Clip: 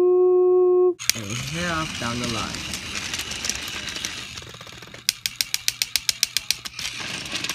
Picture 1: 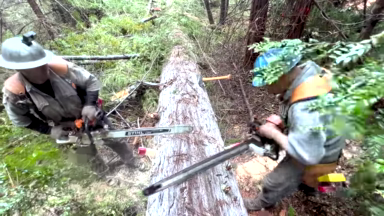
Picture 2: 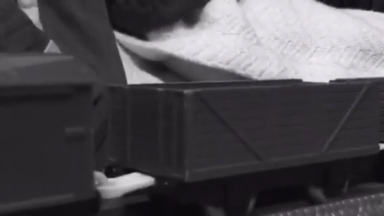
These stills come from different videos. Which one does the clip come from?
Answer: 2